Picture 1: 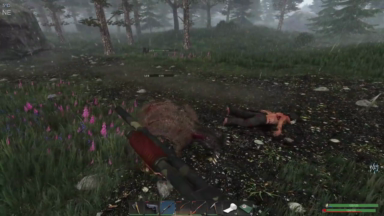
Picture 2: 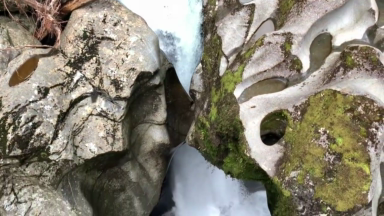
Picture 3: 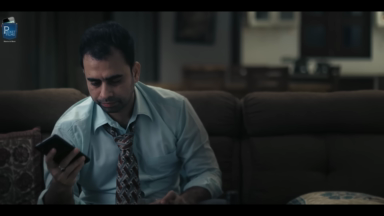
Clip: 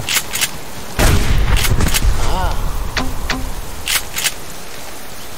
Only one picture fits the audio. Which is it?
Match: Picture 1